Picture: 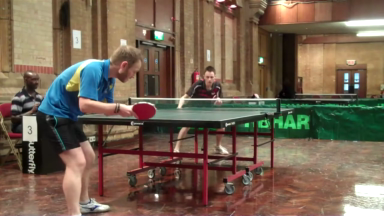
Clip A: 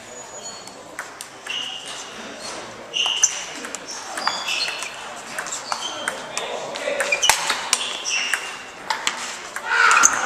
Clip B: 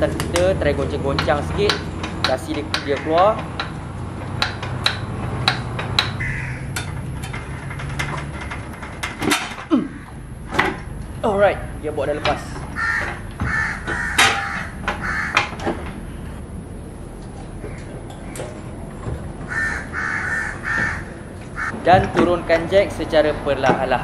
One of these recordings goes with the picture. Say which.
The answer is A